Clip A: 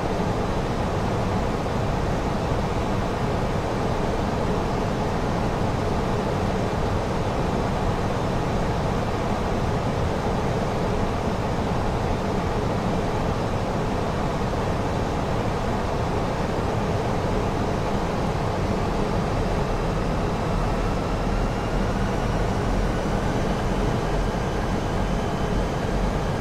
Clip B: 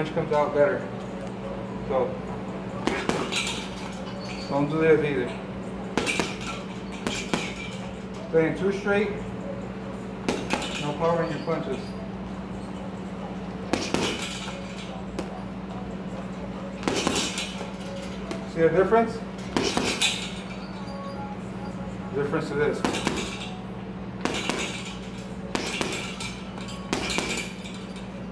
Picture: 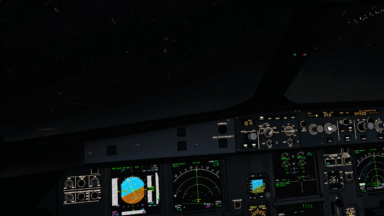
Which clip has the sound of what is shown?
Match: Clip A